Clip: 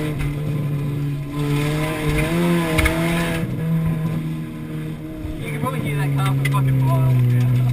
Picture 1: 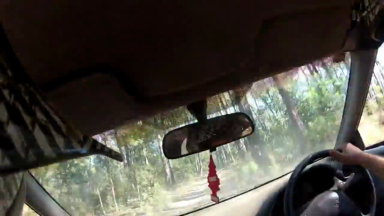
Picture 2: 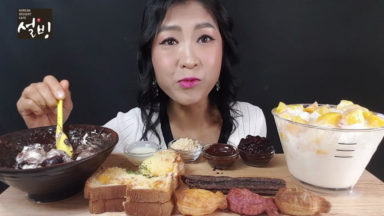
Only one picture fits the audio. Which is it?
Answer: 1